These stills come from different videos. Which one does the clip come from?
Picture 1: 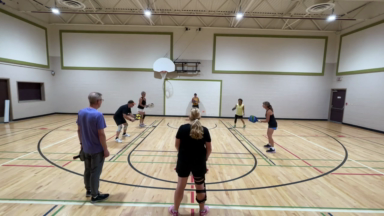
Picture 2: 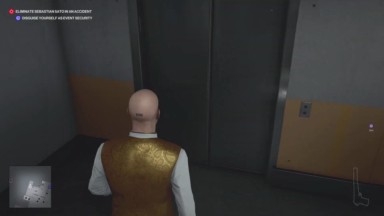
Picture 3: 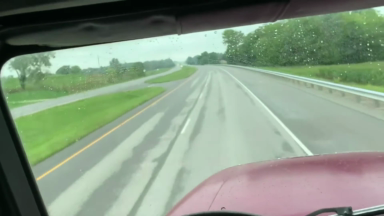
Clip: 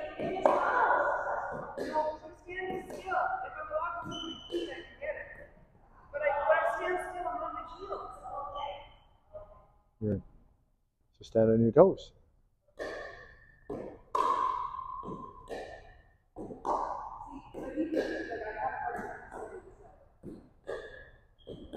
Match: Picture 1